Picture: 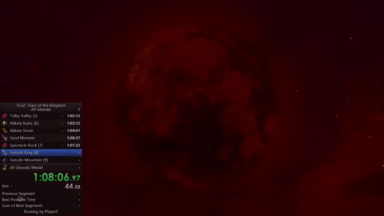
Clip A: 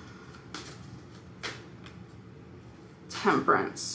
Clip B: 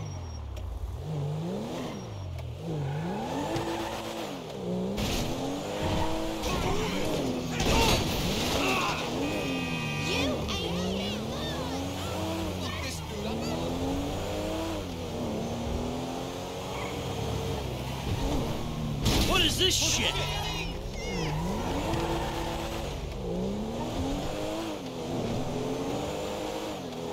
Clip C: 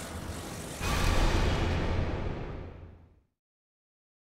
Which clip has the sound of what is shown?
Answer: C